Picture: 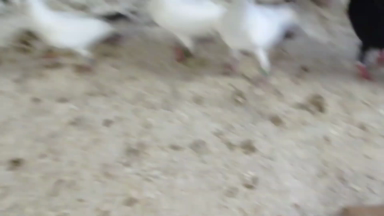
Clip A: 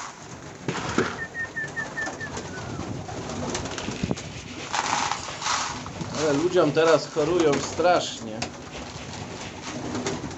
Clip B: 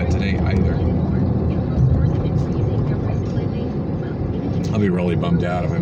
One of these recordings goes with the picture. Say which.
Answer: A